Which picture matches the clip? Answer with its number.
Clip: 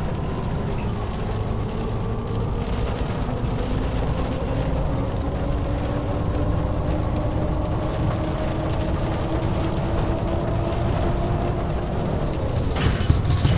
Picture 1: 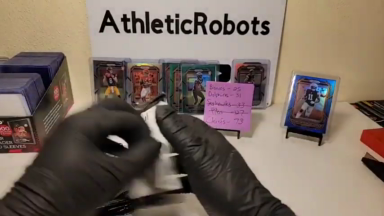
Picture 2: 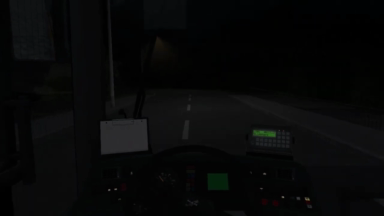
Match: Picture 2